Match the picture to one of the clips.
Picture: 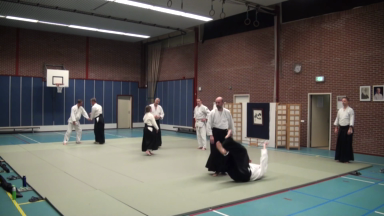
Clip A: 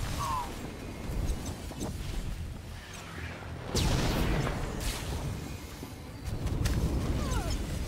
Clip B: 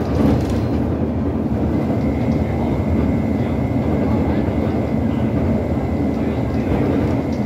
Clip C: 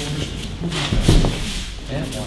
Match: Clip C